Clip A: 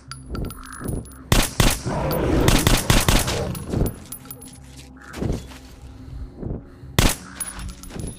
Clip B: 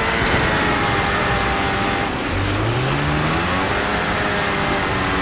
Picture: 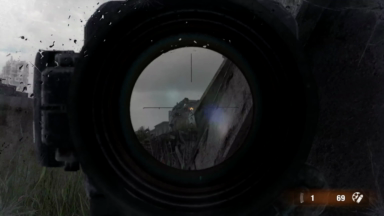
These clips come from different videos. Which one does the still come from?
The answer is A